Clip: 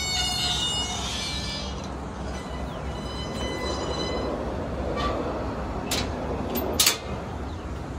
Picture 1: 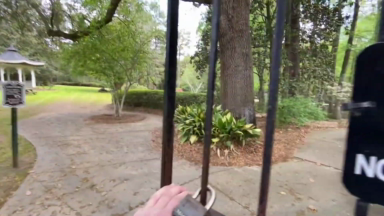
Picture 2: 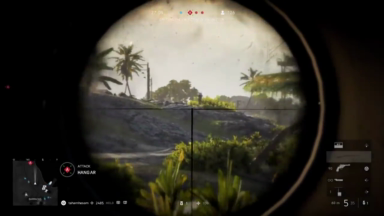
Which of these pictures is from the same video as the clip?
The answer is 1